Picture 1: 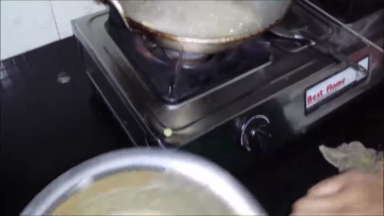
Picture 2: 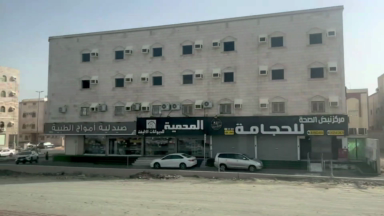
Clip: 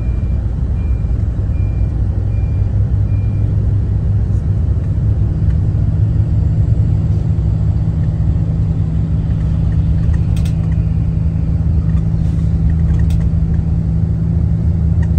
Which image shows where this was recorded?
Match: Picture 2